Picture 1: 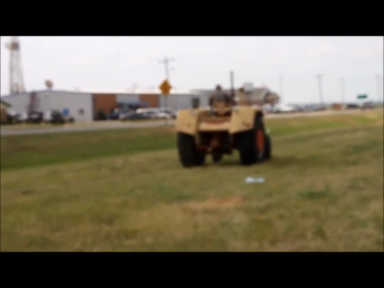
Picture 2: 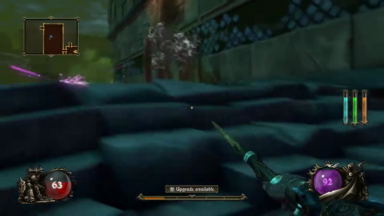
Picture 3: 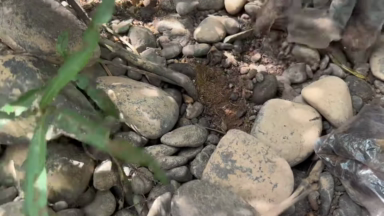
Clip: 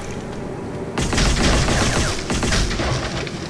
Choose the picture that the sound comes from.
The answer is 2